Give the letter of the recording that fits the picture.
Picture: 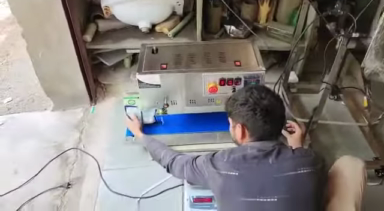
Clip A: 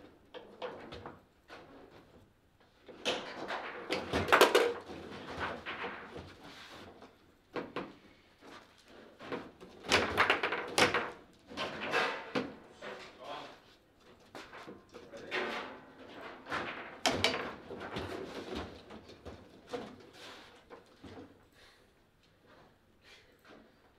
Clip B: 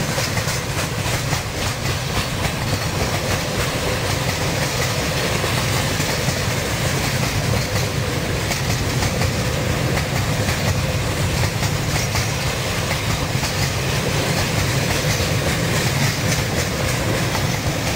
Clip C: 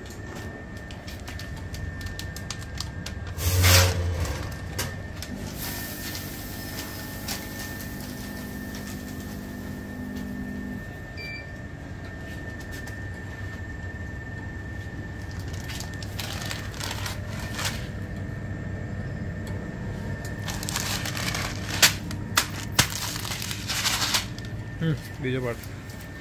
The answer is C